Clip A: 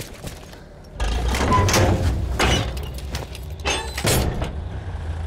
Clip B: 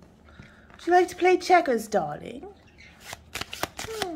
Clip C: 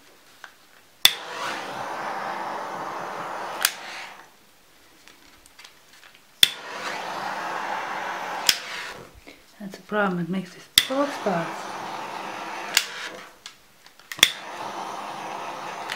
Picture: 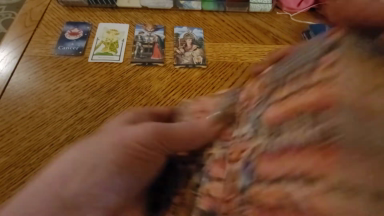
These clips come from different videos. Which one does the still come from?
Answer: B